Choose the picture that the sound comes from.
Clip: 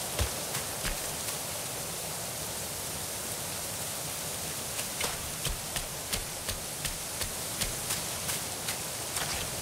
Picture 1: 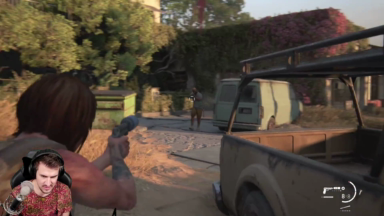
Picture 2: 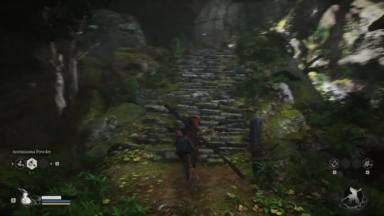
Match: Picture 2